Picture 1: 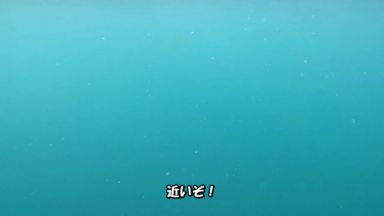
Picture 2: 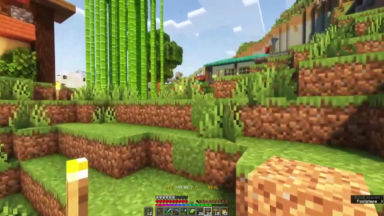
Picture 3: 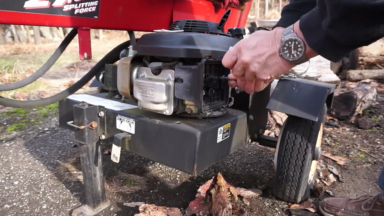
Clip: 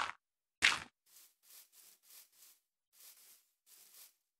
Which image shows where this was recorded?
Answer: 2